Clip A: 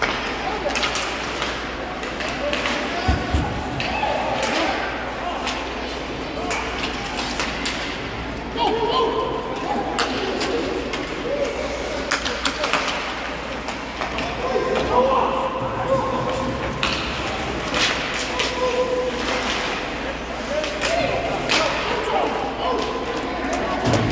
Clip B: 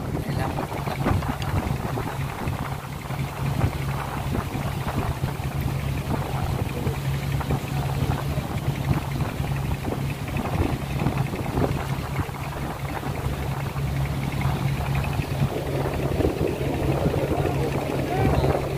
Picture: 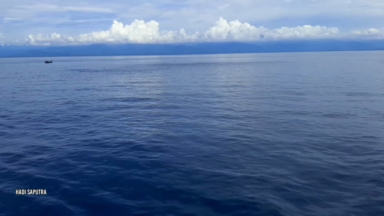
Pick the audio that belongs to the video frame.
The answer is B